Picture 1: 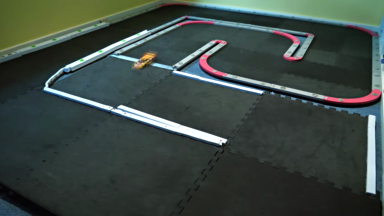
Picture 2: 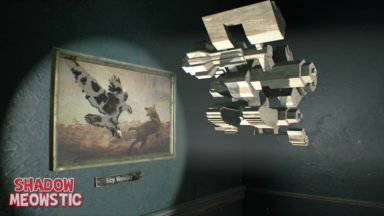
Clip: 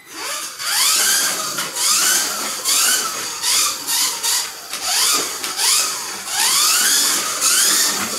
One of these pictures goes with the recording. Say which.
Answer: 1